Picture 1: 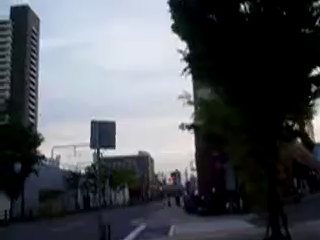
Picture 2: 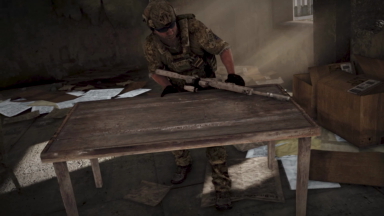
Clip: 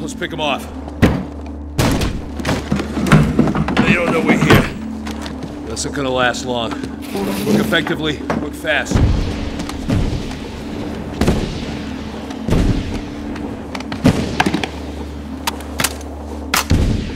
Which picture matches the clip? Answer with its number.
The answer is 2